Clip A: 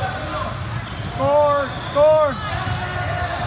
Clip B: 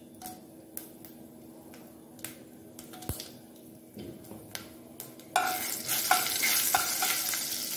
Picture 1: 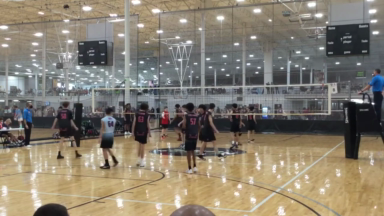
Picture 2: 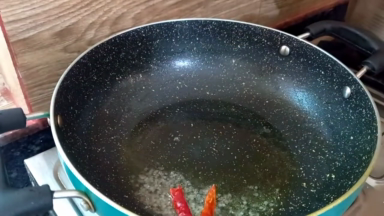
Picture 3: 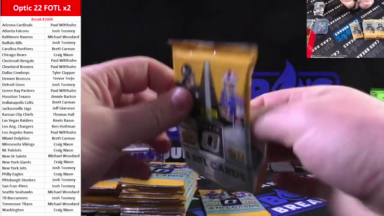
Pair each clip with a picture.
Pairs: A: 1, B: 2